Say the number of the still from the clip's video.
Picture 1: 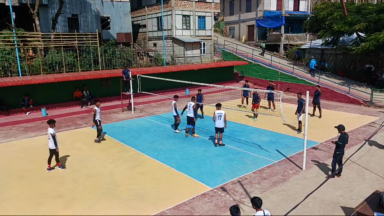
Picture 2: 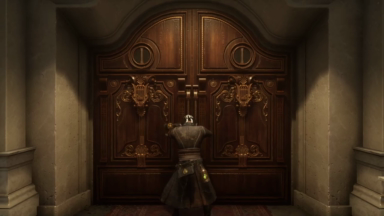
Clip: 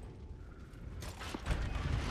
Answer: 2